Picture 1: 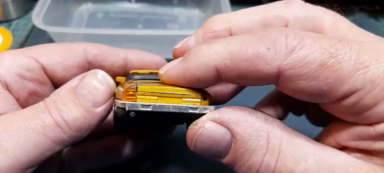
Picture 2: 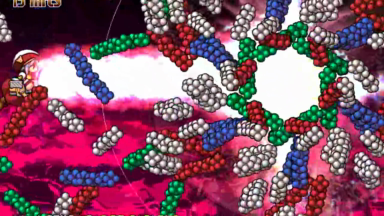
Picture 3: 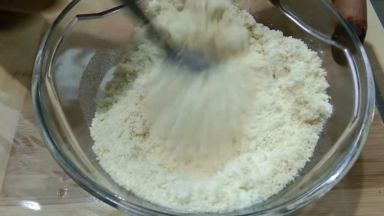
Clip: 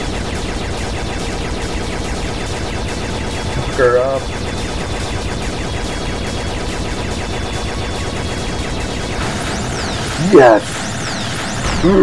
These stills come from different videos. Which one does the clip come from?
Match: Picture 2